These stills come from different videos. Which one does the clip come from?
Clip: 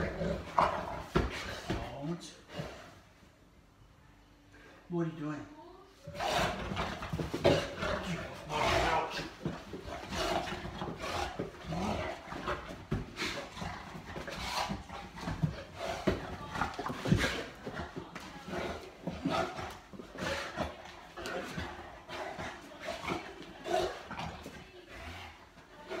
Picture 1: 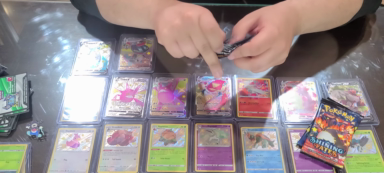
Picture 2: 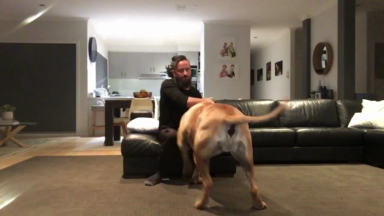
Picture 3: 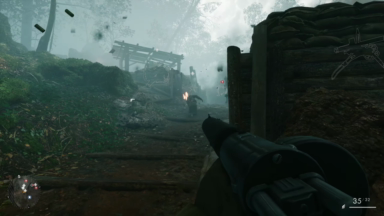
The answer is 2